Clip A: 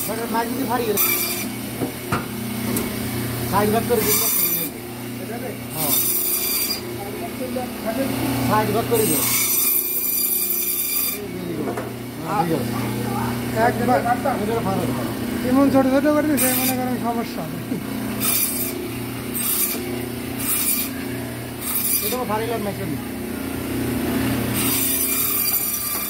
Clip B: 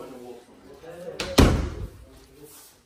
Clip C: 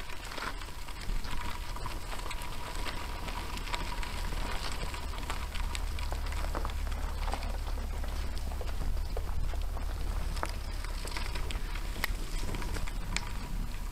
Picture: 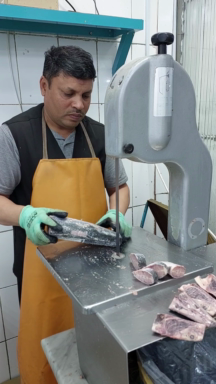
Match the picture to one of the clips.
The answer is A